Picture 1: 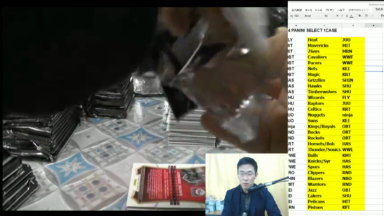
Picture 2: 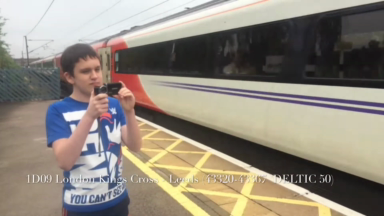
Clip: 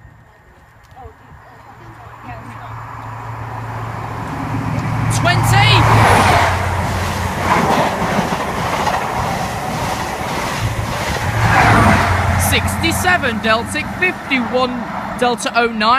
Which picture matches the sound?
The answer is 2